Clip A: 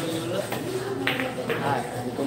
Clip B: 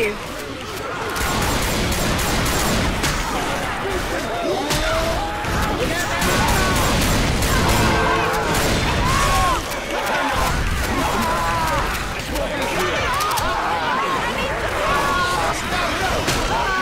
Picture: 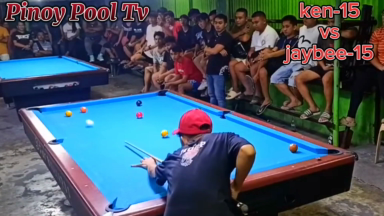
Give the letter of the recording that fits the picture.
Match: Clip A